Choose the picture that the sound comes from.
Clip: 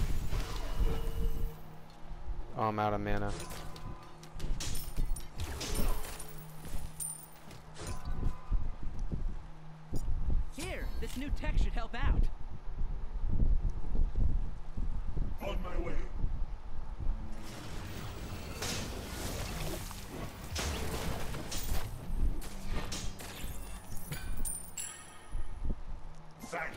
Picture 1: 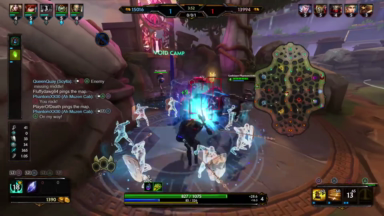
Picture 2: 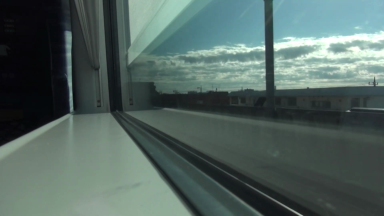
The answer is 1